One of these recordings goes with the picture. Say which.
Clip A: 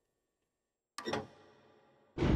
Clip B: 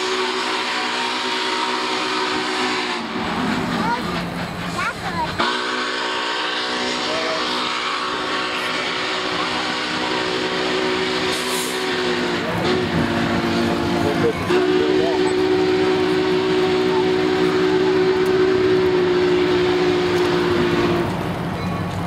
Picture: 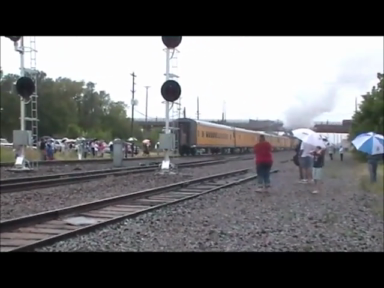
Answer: B